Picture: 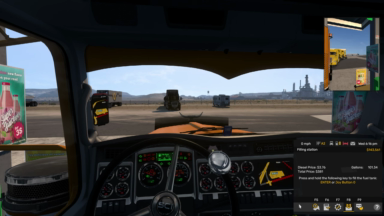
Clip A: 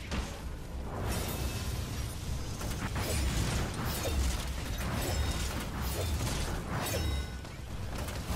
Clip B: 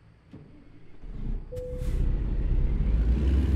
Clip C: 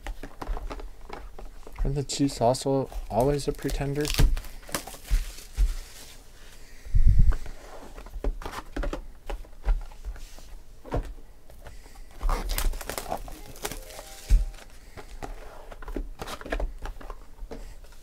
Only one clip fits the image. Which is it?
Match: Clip B